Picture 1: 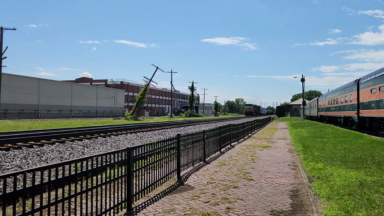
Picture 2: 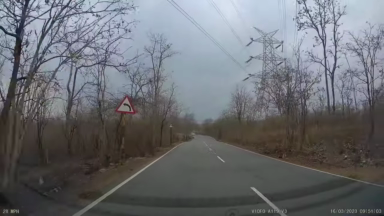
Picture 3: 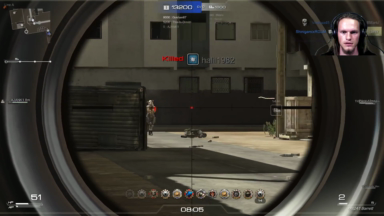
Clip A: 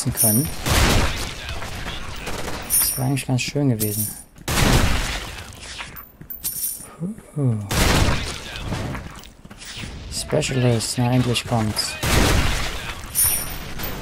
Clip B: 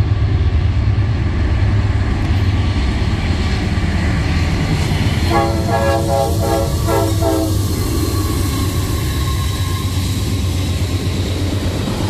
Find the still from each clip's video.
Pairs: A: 3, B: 1